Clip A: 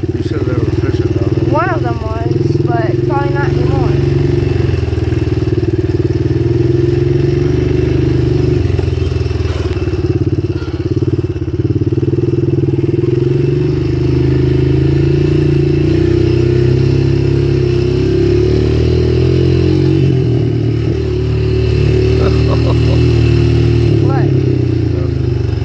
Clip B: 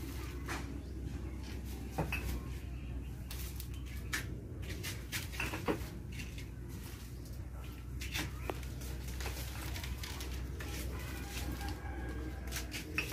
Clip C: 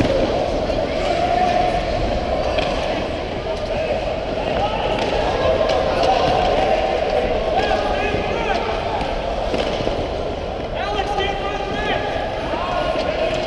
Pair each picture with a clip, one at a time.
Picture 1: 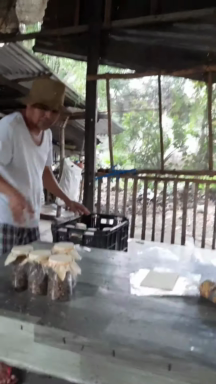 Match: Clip B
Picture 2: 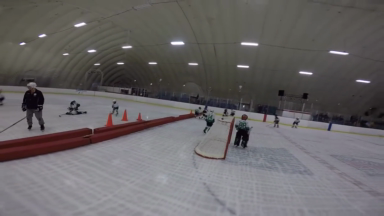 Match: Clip C